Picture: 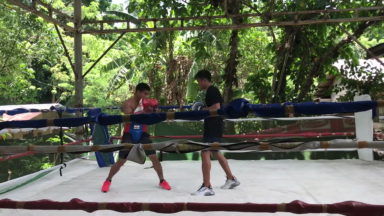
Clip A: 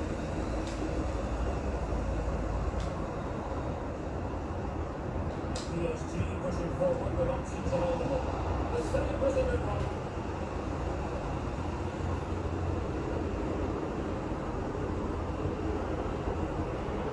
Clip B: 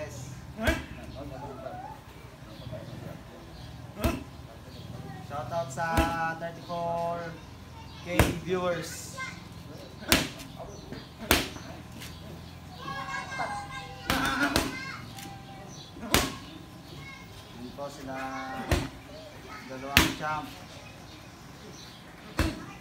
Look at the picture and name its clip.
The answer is B